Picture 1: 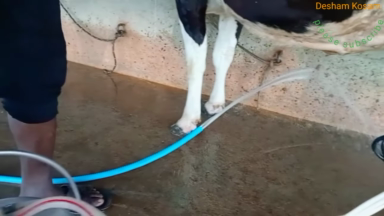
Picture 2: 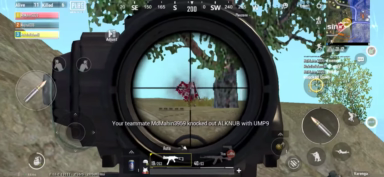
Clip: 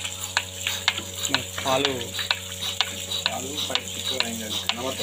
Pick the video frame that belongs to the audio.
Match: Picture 1